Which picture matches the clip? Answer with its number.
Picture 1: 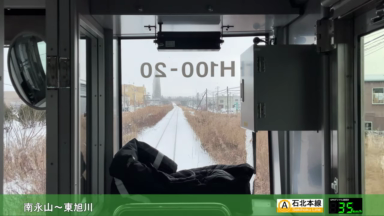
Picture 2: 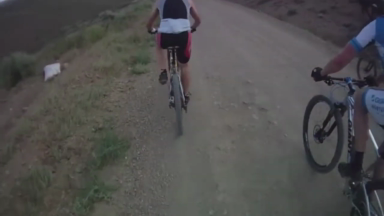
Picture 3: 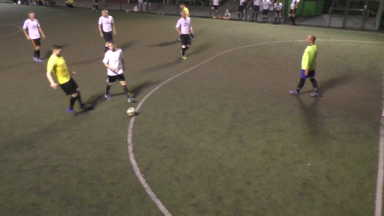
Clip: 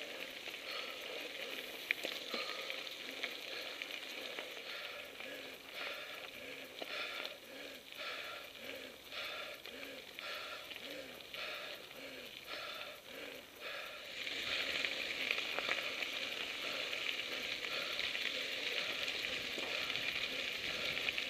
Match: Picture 2